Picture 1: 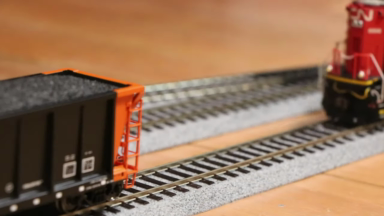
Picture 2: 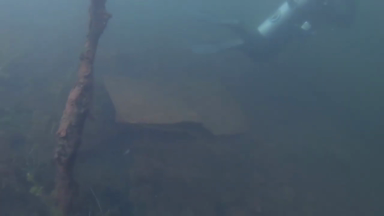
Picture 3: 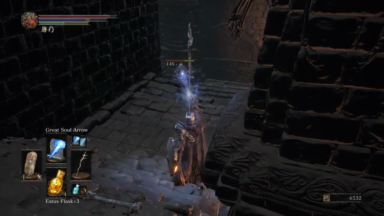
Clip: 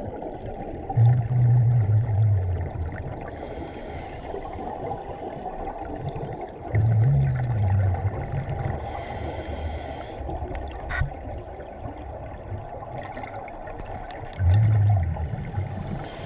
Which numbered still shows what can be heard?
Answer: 2